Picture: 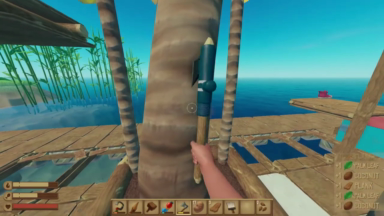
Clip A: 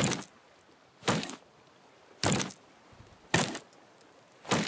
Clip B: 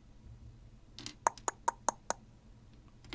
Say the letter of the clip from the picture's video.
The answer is A